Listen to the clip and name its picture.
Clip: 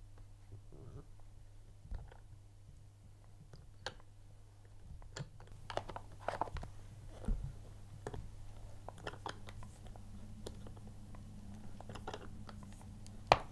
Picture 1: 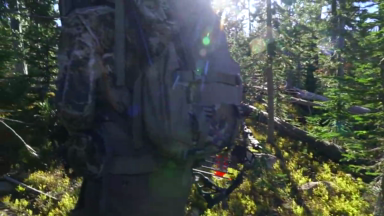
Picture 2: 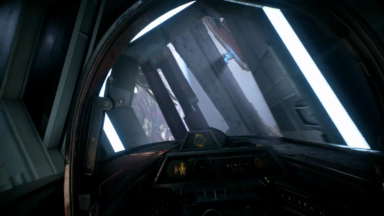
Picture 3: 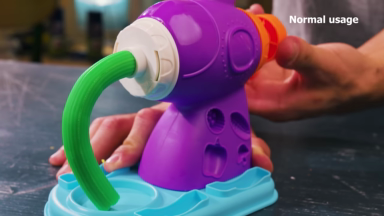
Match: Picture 3